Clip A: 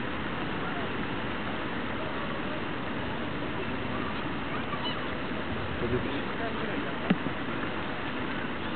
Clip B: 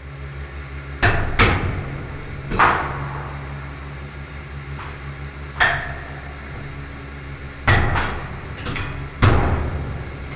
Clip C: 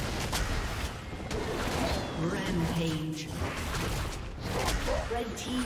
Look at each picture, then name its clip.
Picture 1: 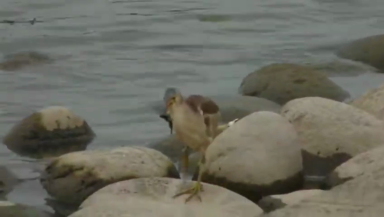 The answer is A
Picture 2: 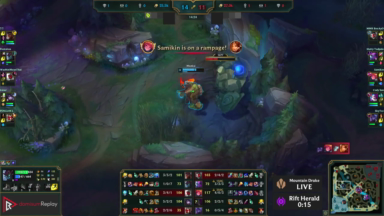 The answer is C